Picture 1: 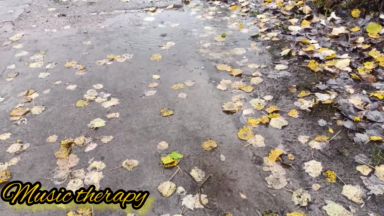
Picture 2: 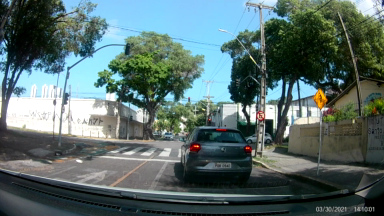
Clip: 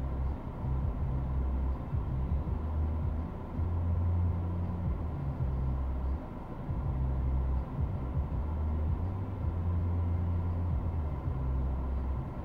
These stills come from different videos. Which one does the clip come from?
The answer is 2